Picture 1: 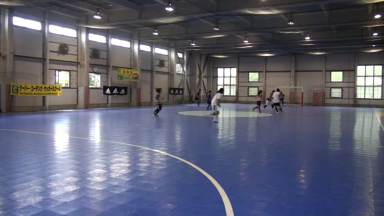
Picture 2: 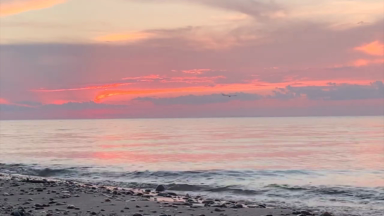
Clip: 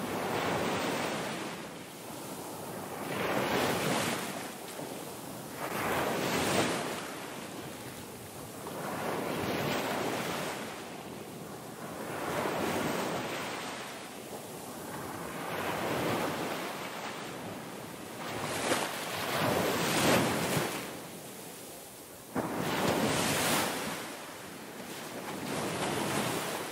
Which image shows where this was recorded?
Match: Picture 2